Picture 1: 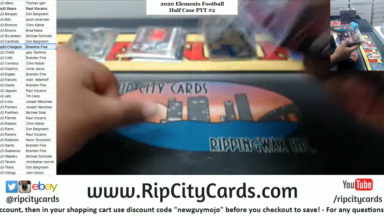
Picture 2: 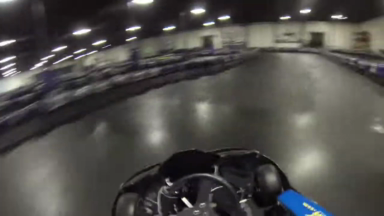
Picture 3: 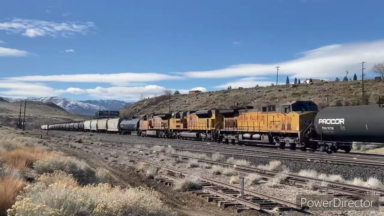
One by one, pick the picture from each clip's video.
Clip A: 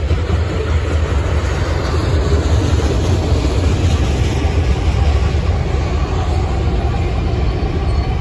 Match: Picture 3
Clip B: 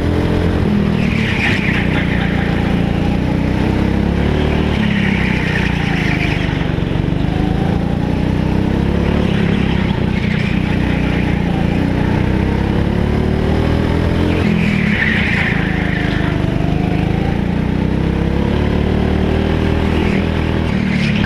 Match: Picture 2